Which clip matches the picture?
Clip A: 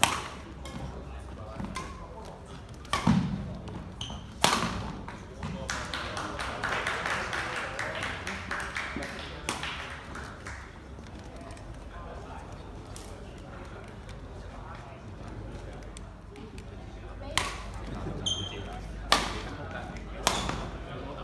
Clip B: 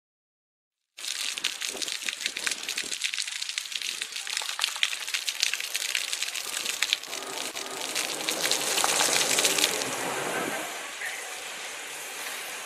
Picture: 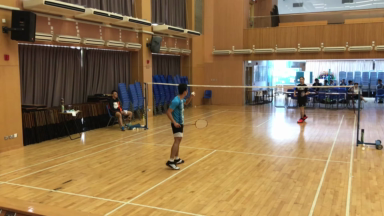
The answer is A